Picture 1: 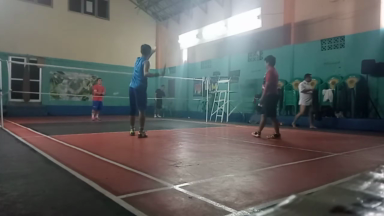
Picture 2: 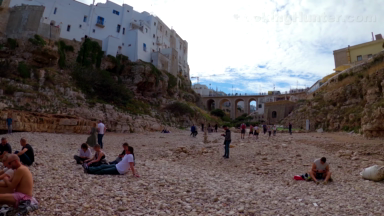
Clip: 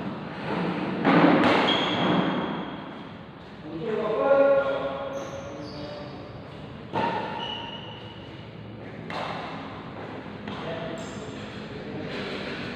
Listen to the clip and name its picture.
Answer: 1